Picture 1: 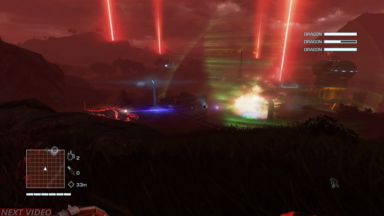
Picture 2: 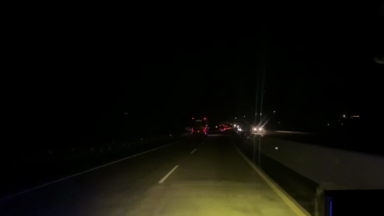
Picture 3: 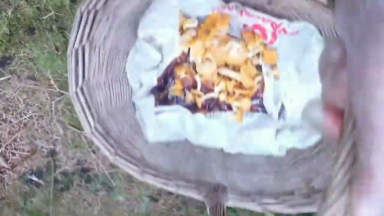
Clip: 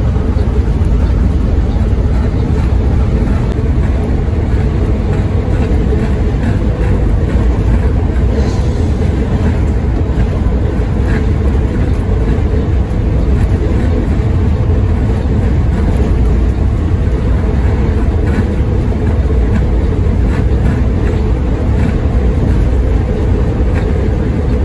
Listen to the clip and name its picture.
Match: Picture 2